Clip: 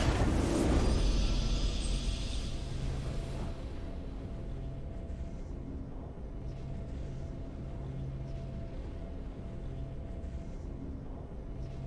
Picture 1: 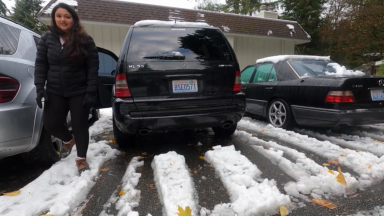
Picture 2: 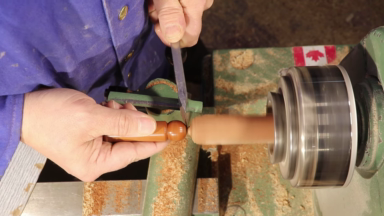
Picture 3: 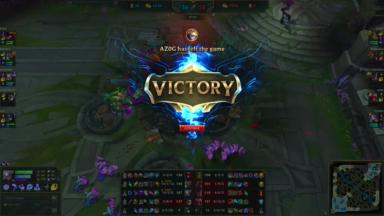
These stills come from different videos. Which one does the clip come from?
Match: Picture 3